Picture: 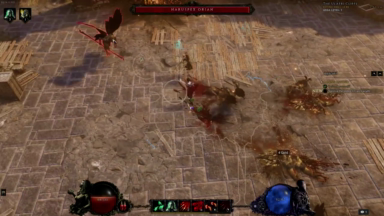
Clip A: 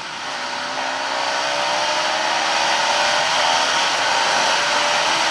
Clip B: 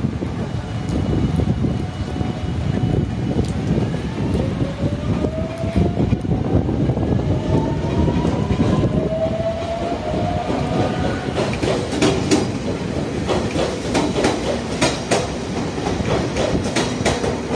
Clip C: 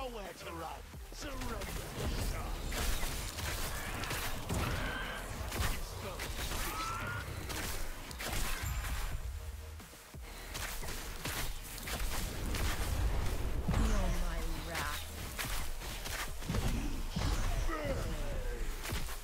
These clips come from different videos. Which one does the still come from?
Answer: C